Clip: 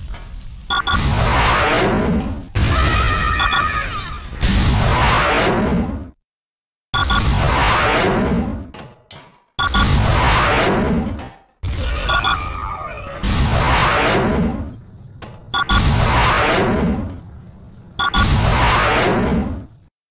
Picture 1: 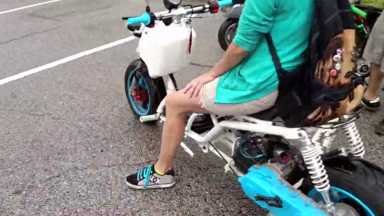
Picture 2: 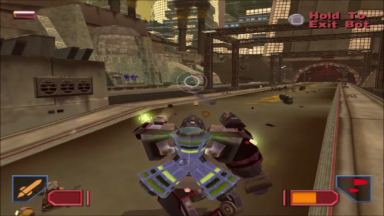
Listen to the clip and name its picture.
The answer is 2